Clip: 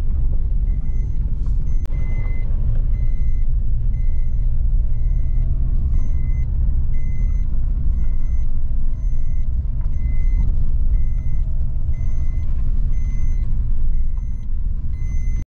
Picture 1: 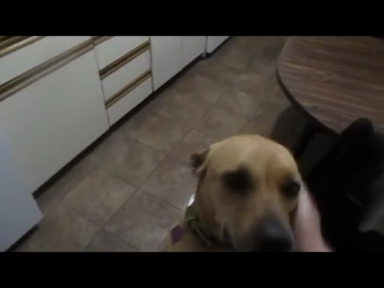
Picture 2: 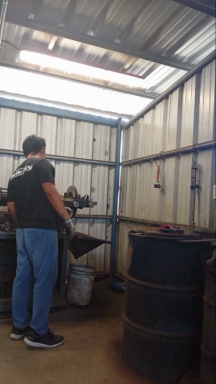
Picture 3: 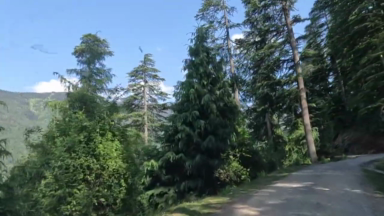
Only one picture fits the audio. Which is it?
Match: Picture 3